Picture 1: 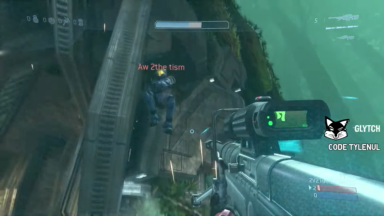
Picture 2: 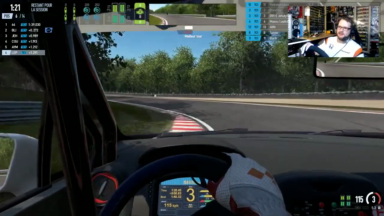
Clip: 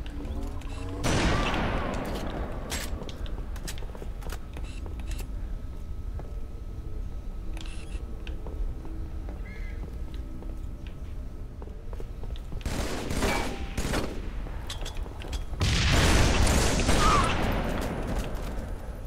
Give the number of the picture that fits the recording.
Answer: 1